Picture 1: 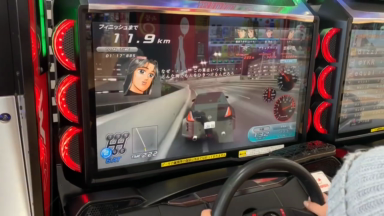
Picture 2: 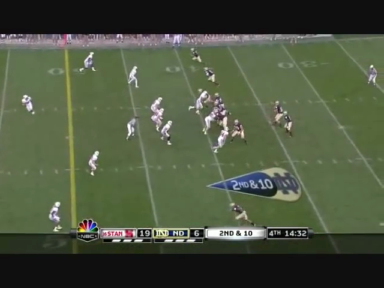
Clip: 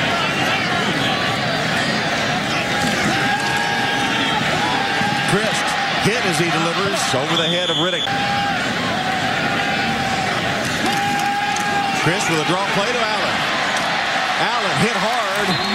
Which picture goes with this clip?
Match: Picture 2